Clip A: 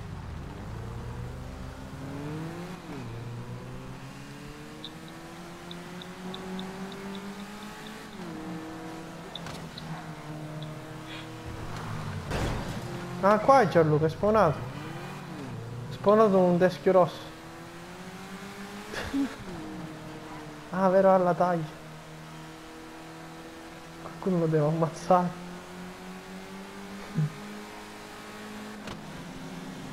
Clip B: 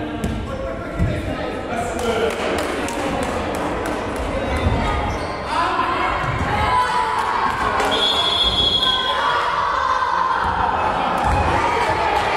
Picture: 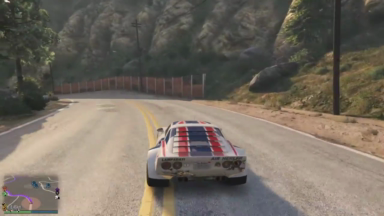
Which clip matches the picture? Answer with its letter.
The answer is A